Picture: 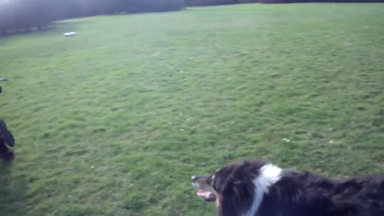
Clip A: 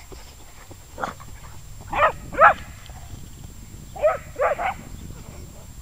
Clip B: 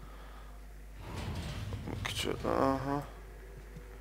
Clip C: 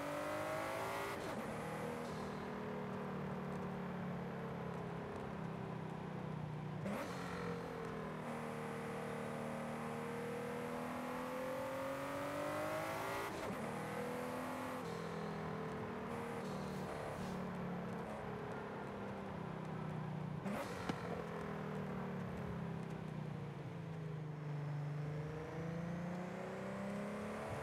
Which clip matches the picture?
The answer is A